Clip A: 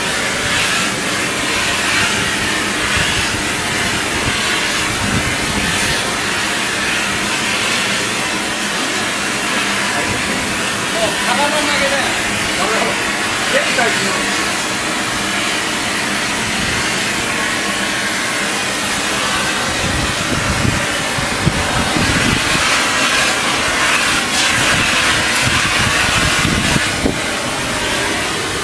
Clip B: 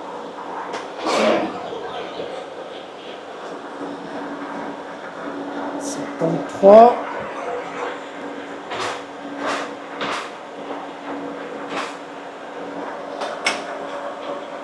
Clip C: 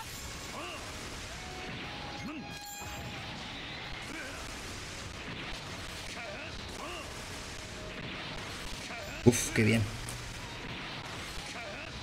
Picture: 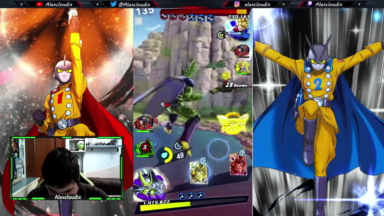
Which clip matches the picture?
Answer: C